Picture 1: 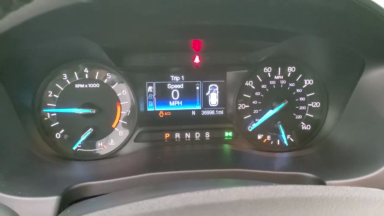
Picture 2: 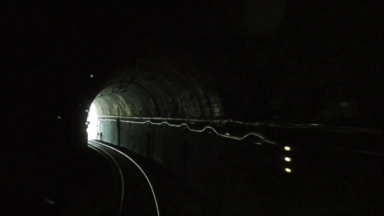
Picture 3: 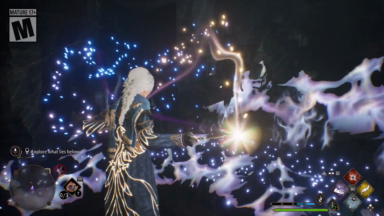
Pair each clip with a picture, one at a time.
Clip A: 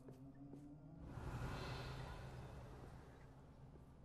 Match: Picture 3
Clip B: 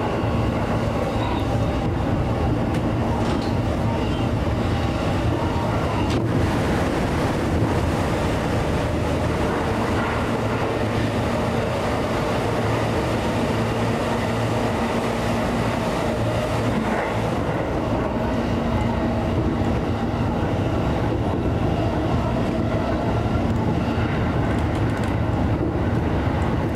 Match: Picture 2